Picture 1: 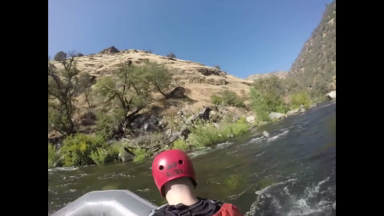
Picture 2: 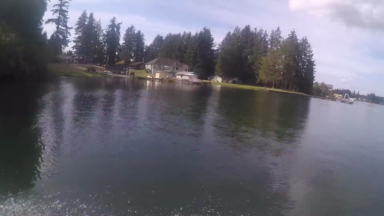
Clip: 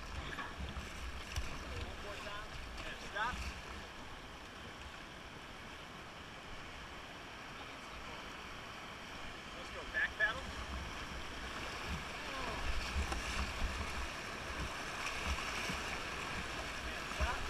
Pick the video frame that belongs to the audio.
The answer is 1